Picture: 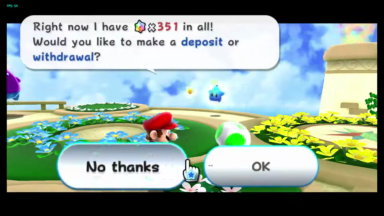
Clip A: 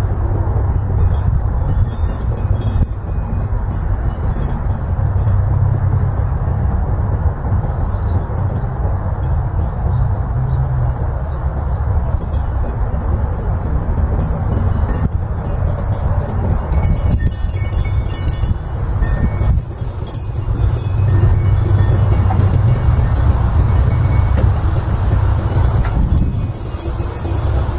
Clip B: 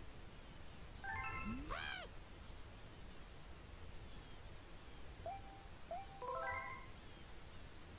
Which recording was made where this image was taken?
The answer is B